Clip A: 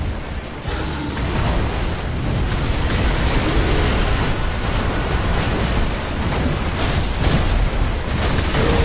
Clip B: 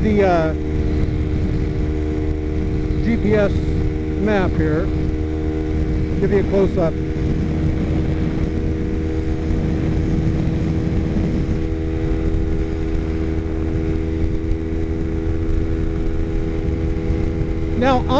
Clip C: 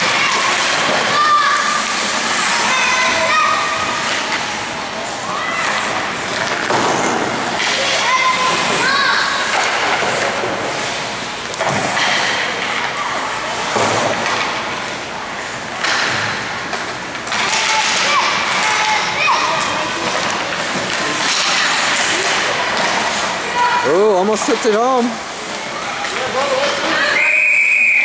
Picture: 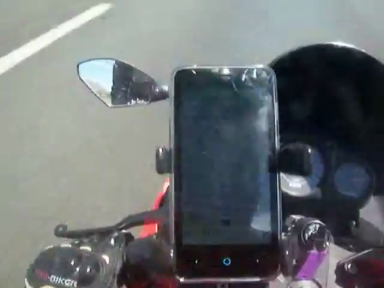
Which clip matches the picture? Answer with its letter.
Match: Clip B